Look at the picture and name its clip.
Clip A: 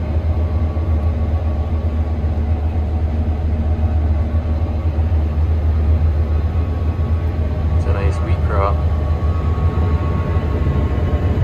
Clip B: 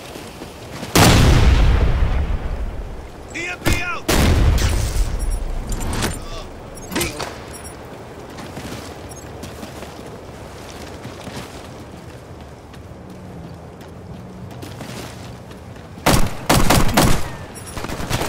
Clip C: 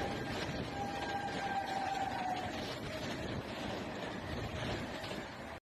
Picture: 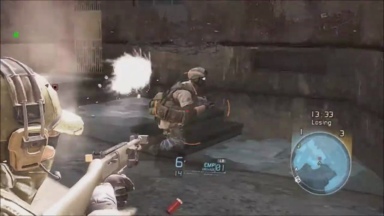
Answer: B